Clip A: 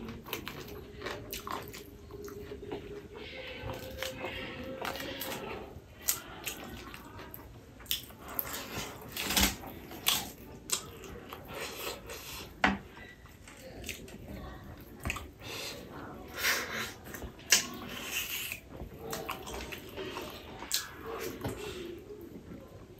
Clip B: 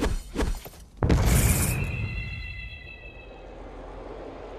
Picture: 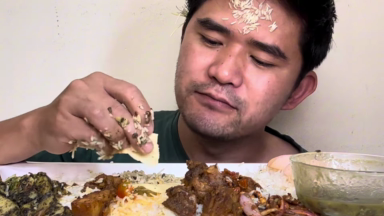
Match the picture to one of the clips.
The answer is A